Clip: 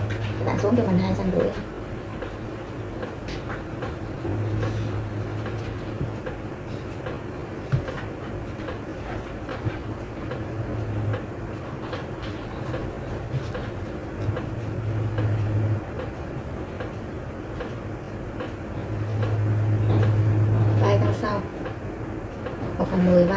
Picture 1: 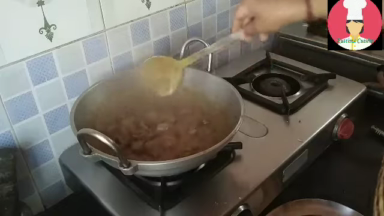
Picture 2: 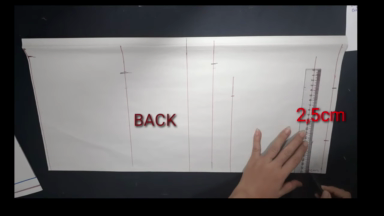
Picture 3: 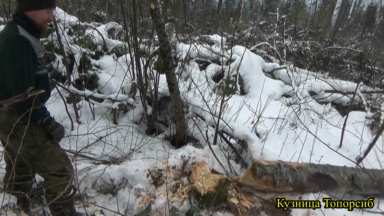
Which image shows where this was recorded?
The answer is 2